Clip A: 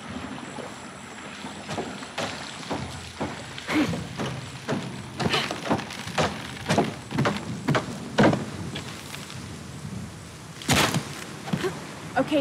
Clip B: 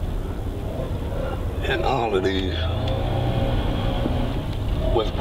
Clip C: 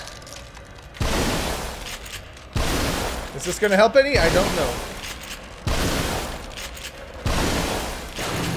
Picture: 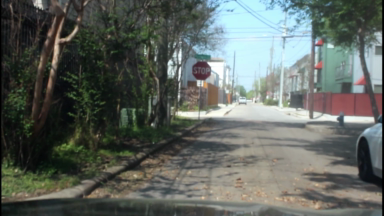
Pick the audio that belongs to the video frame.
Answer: B